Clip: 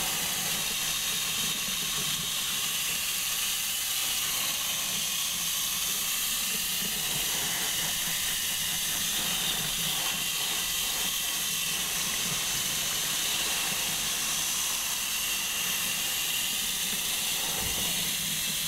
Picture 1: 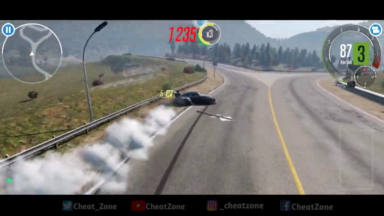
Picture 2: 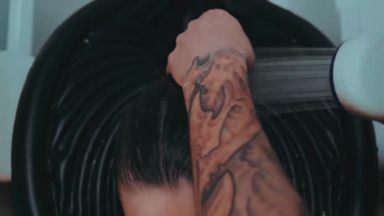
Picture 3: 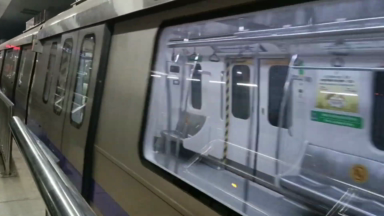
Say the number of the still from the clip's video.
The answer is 2